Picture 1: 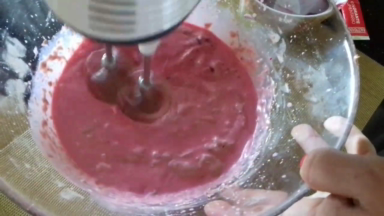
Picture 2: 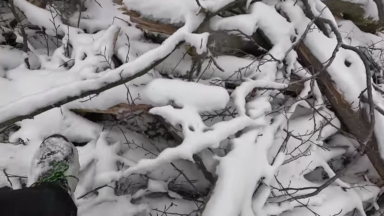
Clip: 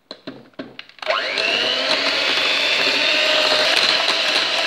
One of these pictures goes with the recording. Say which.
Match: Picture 1